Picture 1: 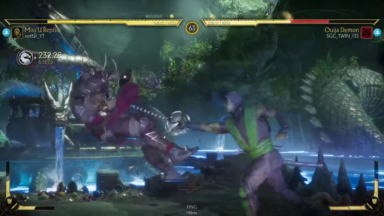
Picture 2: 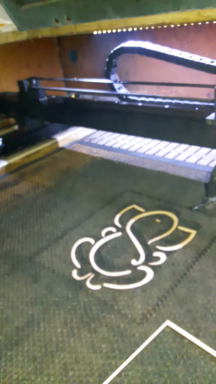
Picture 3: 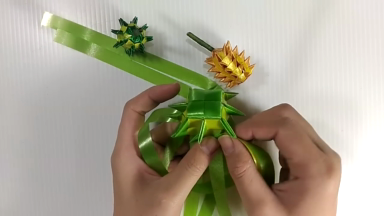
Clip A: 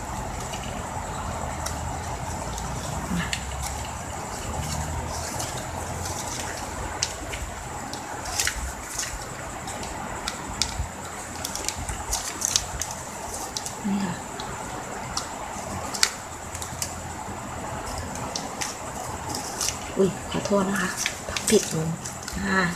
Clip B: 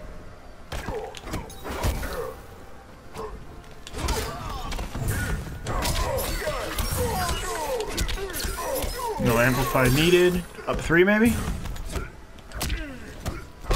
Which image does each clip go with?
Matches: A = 3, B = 1